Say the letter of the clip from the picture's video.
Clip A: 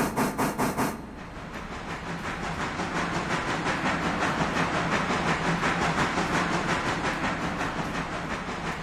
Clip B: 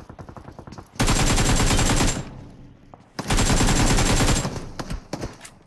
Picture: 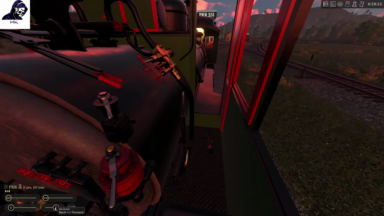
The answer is A